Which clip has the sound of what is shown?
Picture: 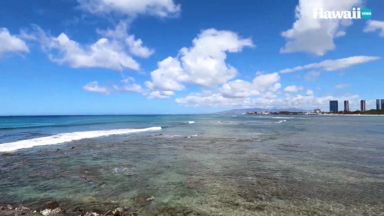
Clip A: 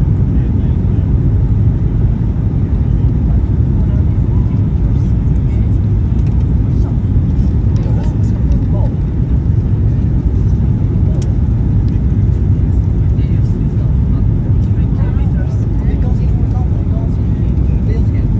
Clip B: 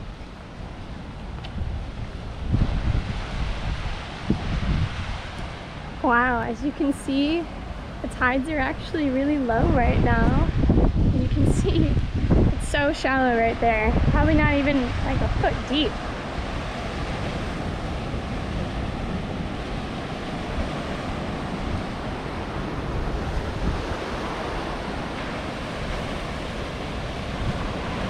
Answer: B